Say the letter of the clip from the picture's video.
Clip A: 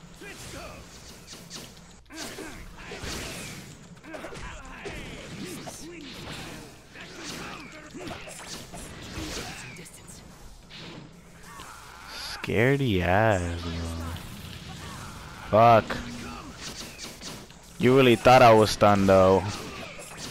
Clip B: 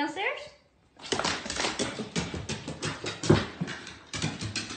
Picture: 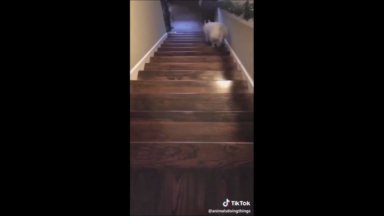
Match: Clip B